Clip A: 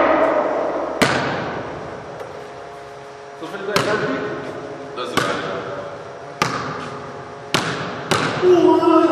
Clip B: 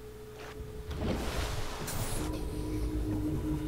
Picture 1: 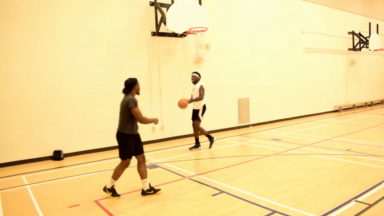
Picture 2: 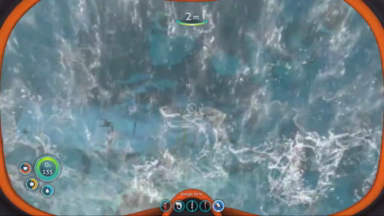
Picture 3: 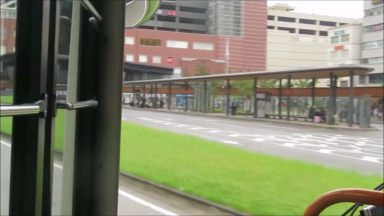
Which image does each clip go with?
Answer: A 1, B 2